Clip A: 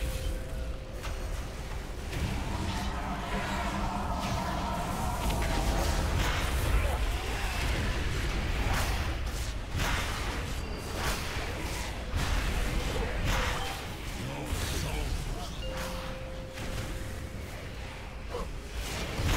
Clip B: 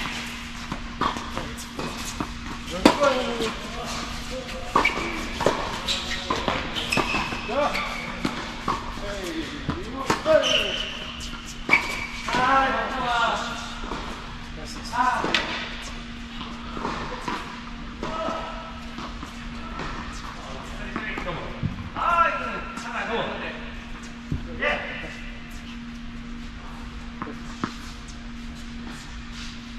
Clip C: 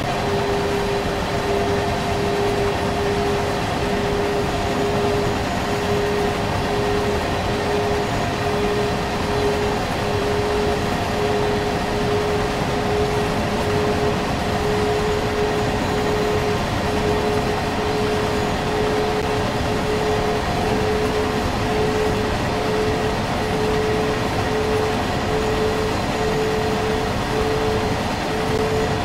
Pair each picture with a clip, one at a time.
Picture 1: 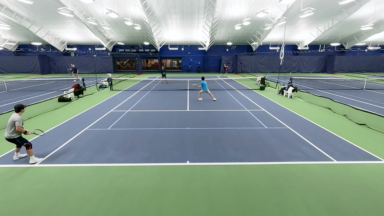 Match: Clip B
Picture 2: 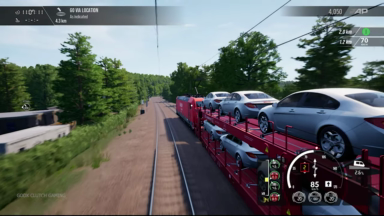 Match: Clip C